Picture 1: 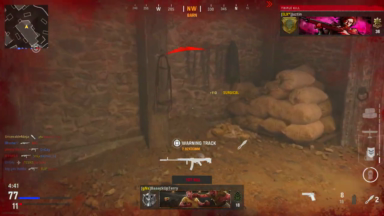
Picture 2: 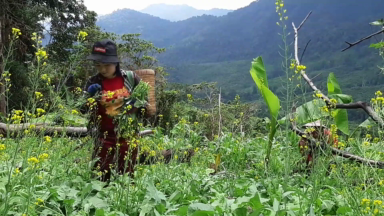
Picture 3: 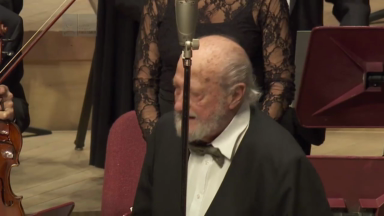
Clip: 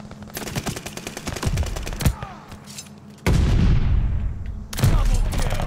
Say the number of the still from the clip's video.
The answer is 1